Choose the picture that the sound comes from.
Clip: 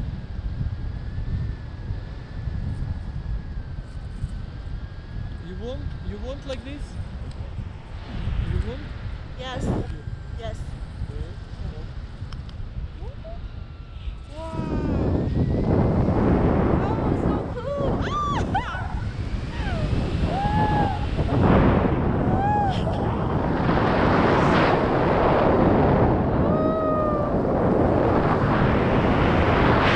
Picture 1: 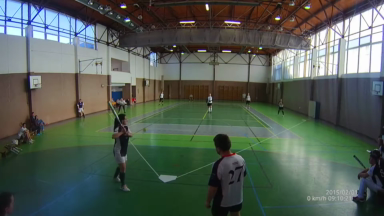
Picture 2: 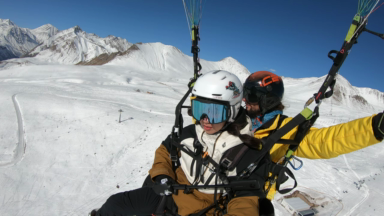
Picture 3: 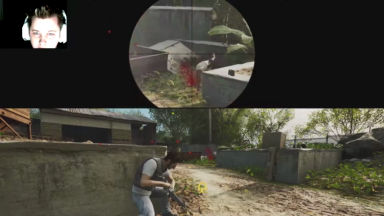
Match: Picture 2